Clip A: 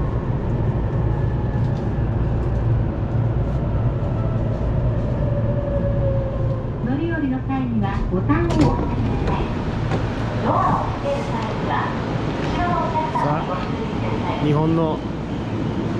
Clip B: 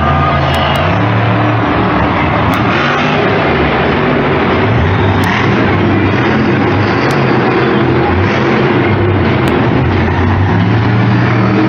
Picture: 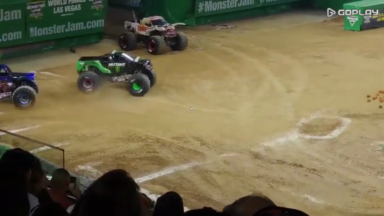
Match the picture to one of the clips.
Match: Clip B